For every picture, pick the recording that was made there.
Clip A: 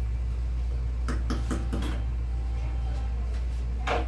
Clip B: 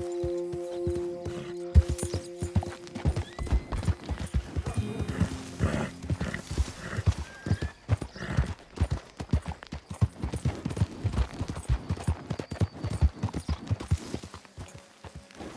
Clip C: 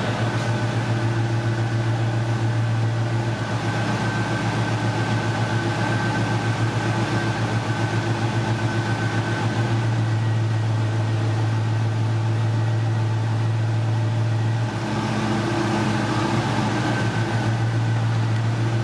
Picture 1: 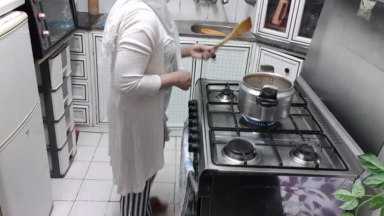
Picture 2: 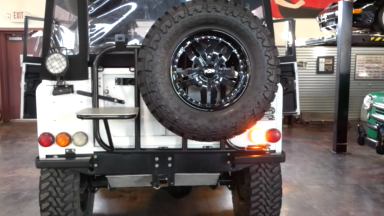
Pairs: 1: A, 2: C